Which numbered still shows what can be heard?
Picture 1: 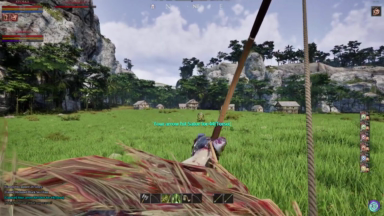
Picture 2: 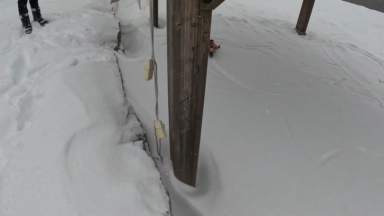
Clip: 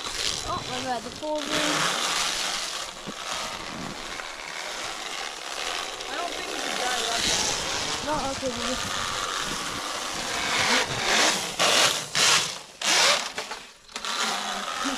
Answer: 2